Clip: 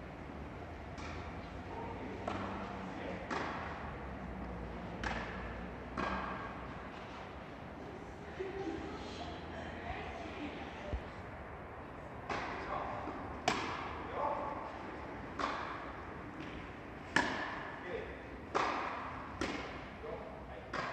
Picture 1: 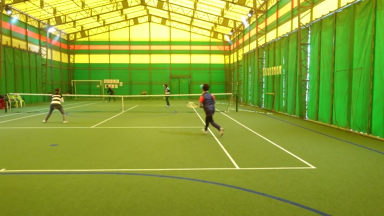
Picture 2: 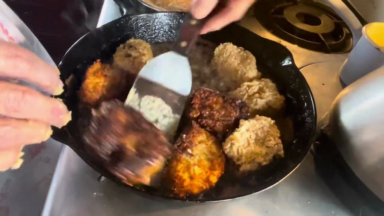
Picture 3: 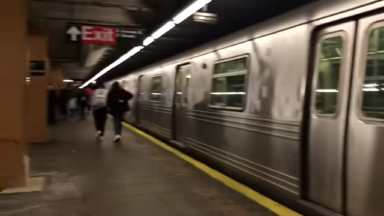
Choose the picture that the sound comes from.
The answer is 1